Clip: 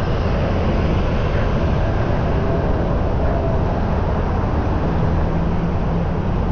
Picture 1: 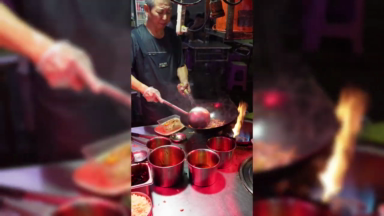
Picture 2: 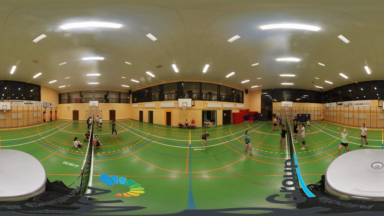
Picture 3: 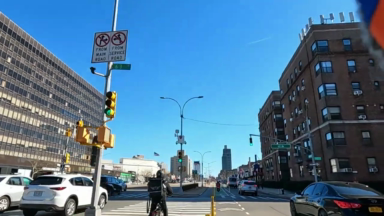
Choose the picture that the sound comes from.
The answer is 3